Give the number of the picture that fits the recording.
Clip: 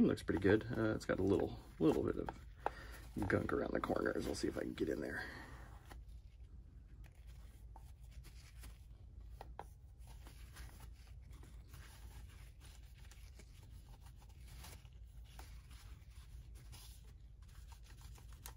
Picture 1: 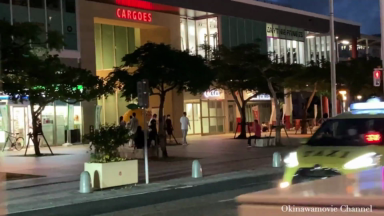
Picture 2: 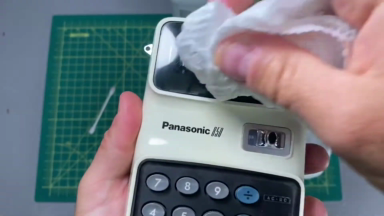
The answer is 2